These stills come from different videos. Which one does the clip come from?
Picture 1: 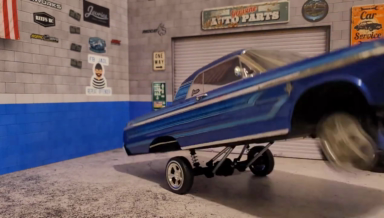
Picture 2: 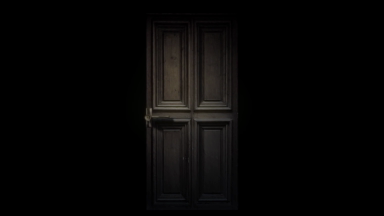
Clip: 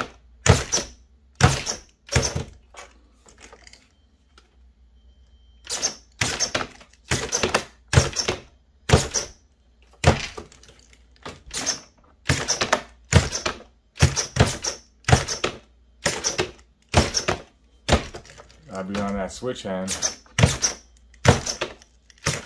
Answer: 1